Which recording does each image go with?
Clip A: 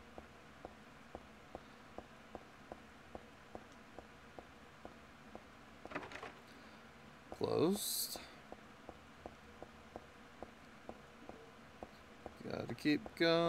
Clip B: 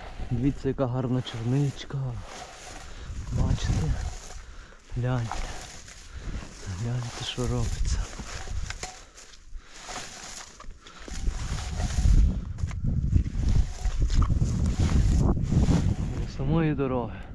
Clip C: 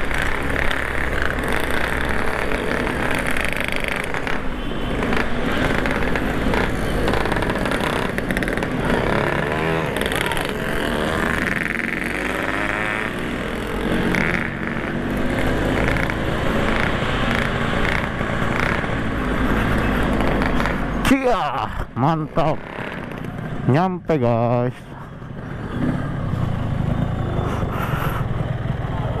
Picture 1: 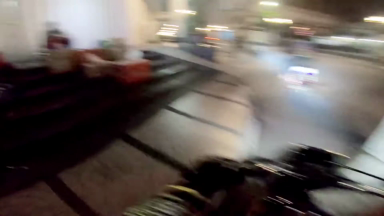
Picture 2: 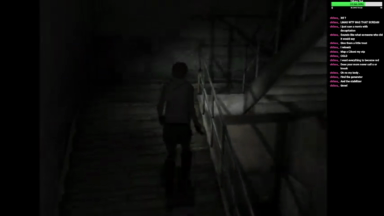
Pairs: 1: C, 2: A